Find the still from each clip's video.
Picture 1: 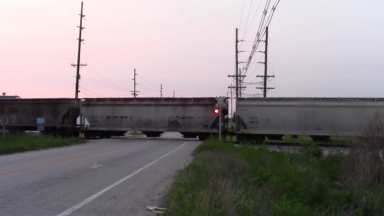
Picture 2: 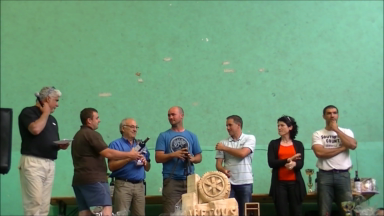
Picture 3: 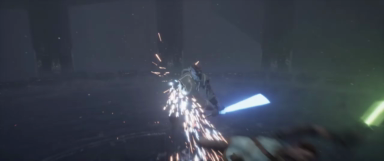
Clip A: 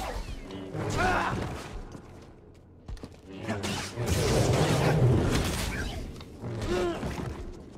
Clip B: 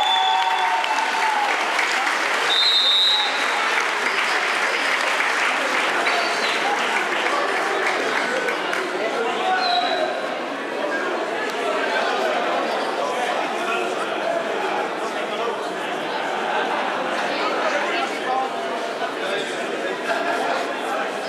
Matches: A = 3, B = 2